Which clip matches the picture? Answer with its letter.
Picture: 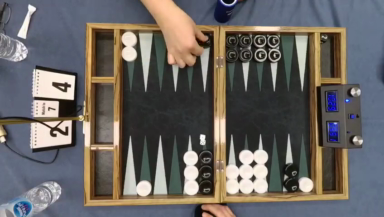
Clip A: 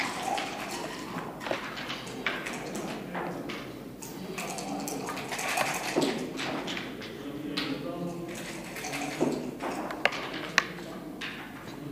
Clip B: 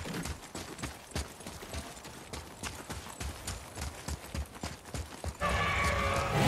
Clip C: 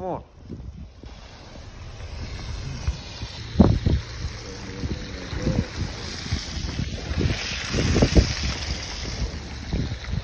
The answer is A